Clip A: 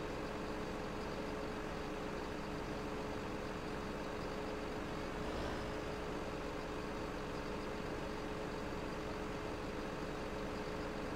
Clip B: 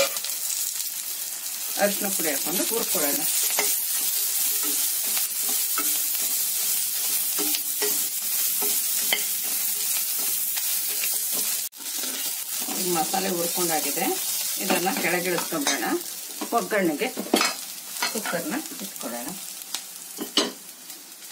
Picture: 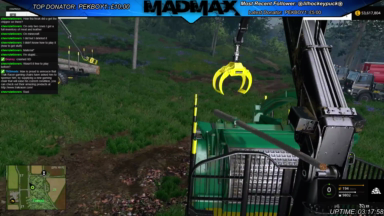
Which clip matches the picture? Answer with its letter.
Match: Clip A